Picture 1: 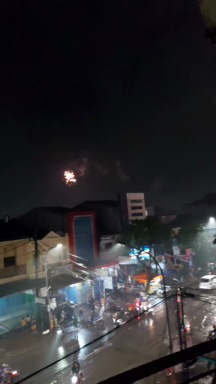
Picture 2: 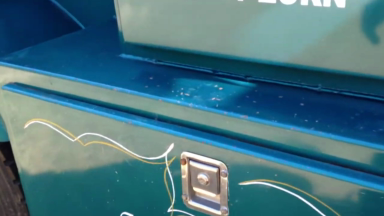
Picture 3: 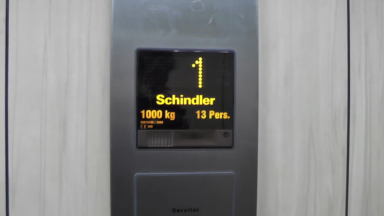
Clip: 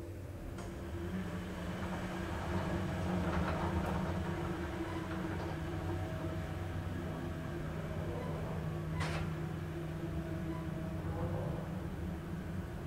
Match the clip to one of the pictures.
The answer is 3